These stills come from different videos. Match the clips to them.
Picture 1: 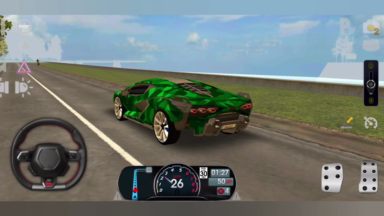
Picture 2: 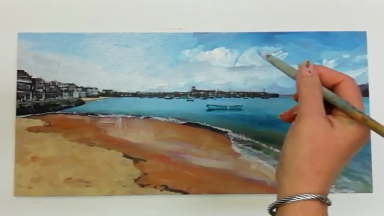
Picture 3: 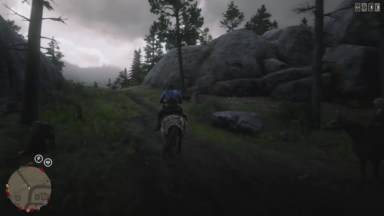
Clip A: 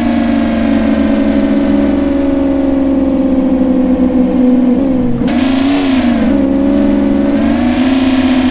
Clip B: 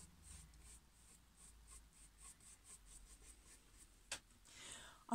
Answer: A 1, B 2